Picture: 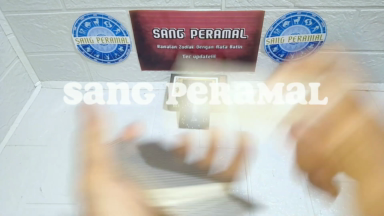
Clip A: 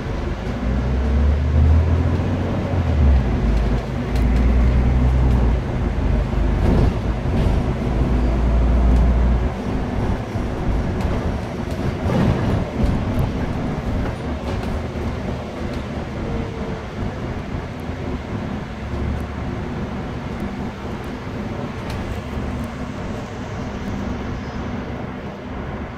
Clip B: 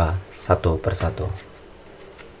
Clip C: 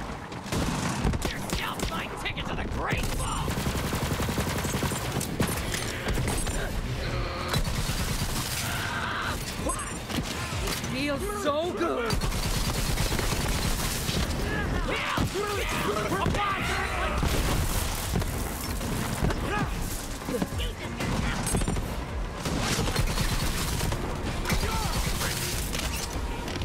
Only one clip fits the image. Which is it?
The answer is B